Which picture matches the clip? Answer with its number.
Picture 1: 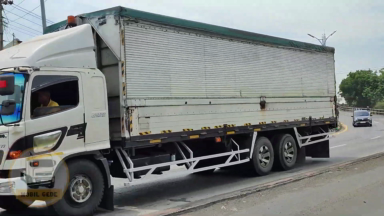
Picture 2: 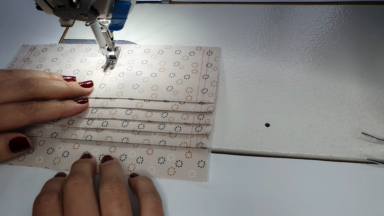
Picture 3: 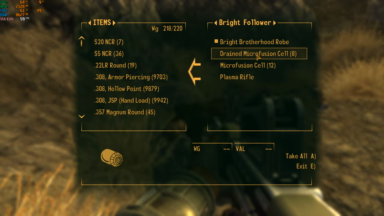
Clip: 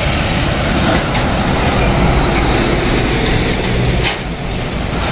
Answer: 1